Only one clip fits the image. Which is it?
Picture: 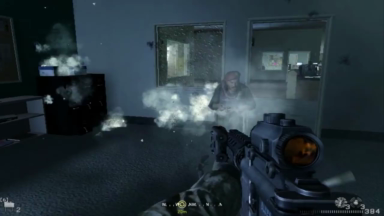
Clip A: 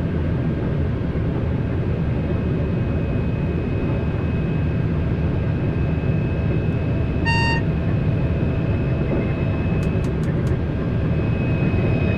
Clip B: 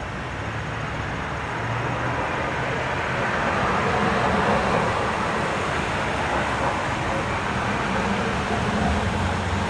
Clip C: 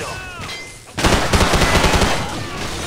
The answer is C